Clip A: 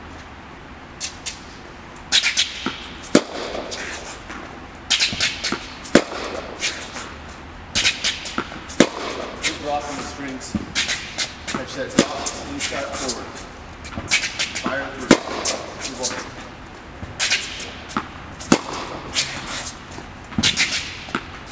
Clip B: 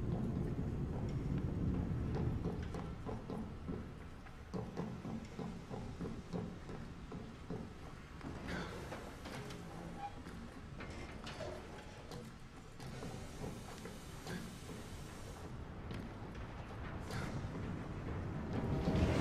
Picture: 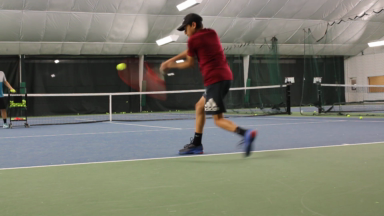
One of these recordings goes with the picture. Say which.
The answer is A